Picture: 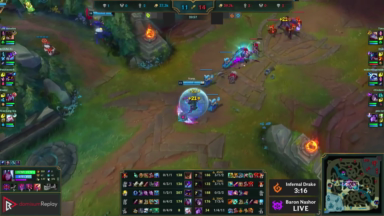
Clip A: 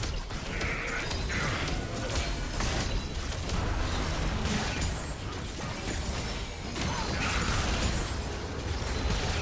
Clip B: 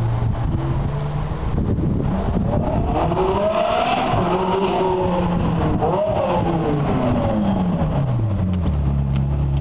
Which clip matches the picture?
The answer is A